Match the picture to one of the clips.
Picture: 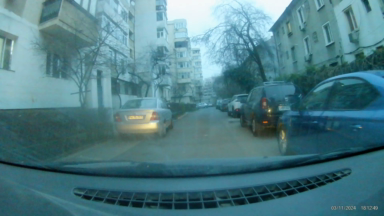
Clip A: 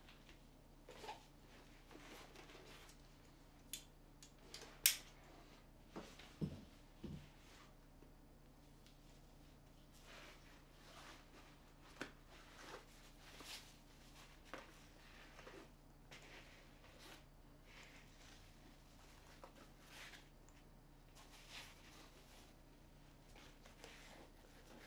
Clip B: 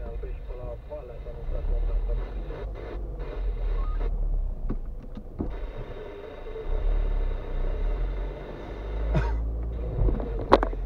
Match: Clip B